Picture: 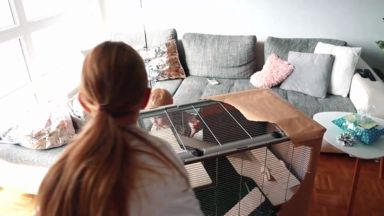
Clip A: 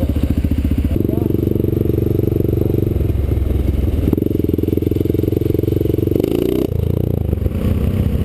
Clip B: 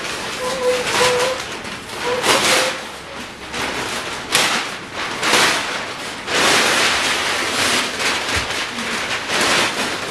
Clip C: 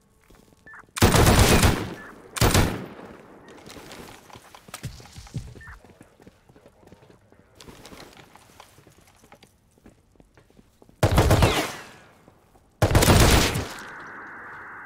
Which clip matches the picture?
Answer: B